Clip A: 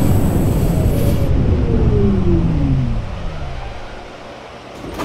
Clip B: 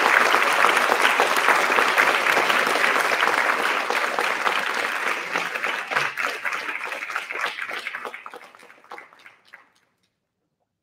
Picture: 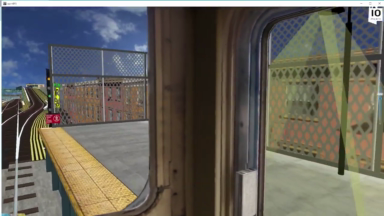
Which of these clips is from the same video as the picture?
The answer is A